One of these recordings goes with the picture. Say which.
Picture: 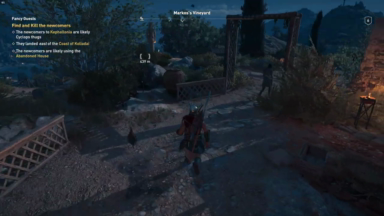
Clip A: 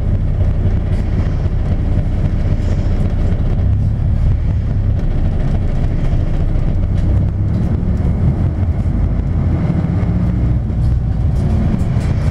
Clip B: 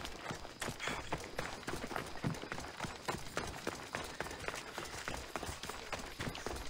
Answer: B